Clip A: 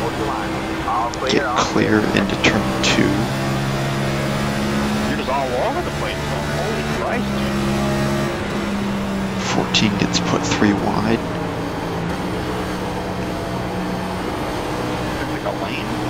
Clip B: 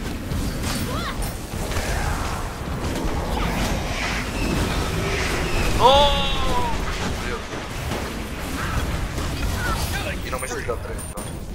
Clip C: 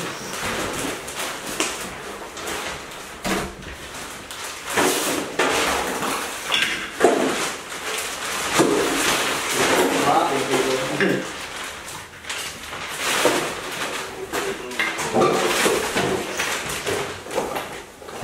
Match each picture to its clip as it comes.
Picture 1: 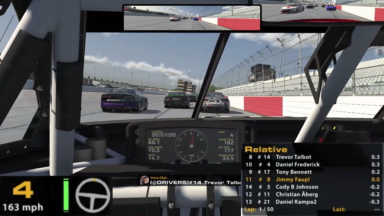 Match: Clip A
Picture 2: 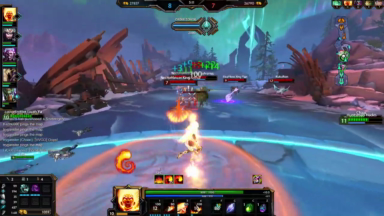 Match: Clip B